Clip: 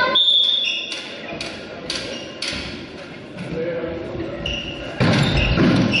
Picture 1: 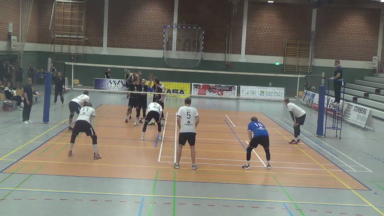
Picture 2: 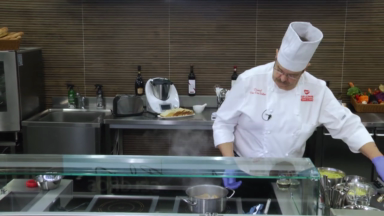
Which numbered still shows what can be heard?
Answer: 1